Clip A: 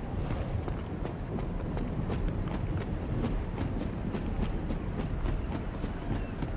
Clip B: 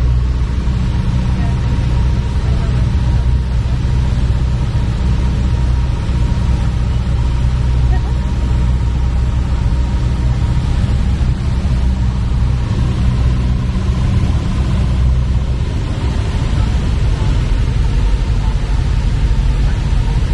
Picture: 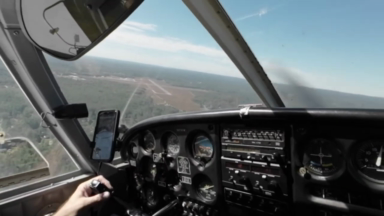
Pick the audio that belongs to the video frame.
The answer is B